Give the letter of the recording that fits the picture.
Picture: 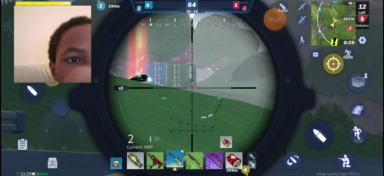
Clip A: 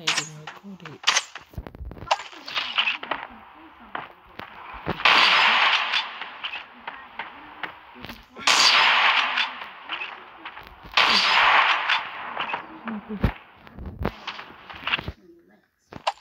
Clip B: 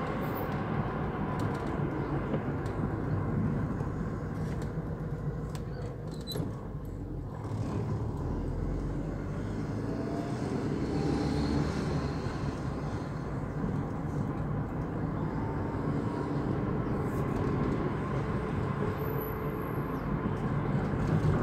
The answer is A